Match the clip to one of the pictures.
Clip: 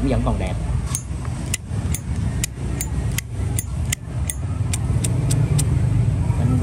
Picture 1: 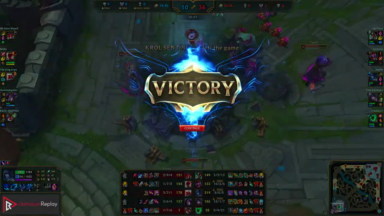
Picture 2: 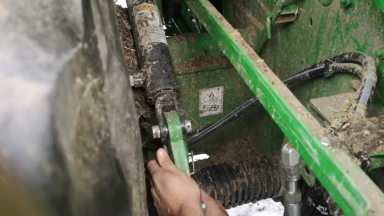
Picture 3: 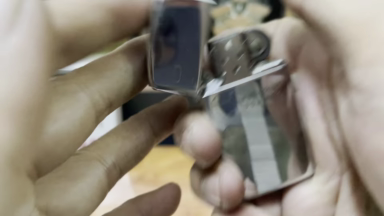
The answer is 3